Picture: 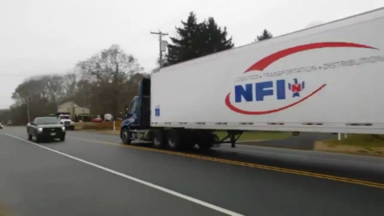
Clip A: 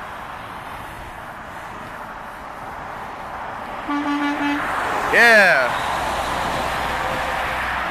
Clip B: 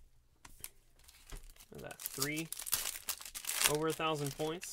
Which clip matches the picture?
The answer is A